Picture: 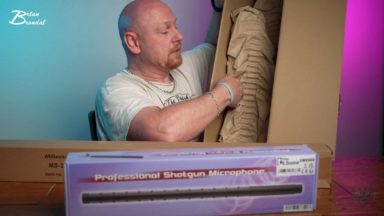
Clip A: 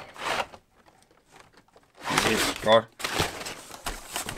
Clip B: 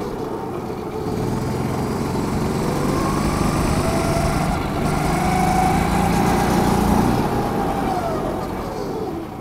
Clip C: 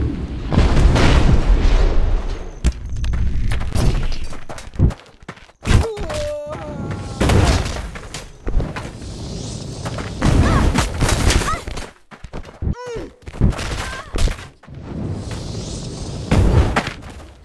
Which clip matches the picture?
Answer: A